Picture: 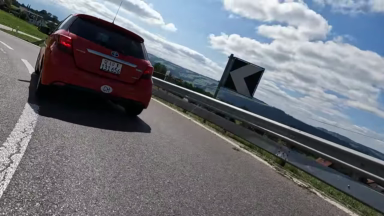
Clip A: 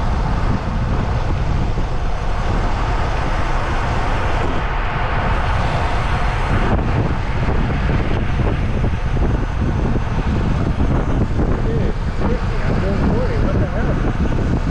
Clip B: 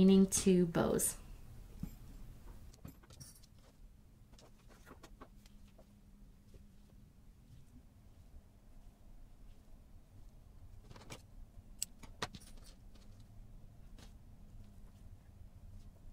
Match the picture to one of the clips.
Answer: A